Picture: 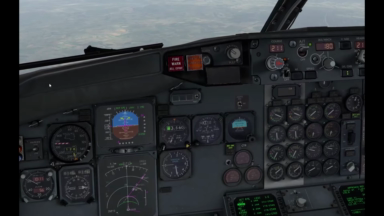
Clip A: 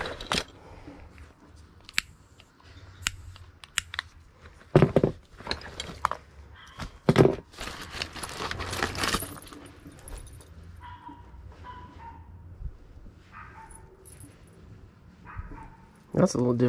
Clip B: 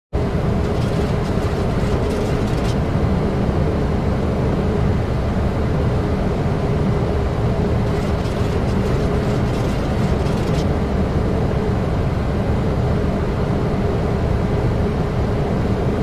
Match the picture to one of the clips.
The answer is B